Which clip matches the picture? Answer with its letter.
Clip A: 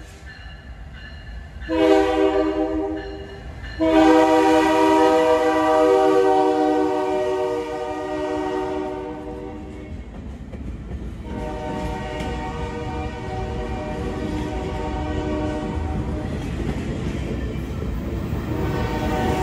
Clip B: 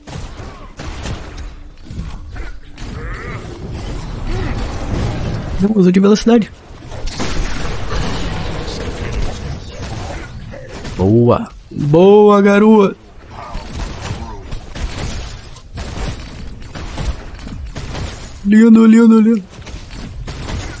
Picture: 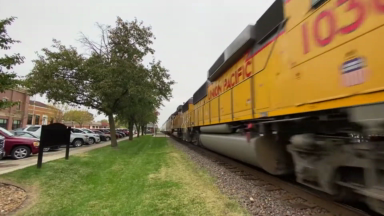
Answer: A